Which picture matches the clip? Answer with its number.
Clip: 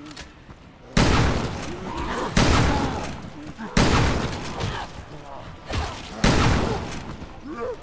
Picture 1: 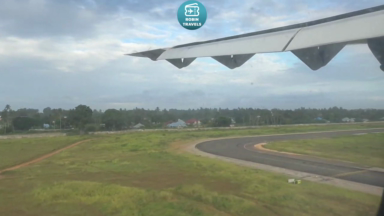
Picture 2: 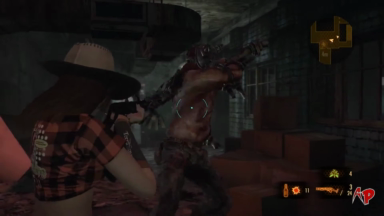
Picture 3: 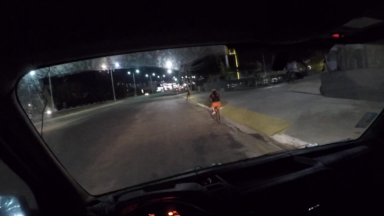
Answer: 2